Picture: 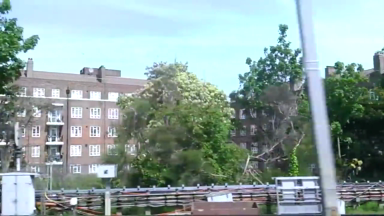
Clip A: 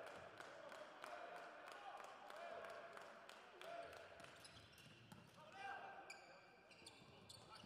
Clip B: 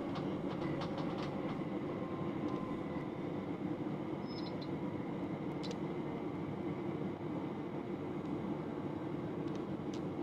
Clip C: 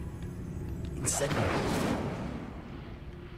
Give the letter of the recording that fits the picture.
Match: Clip B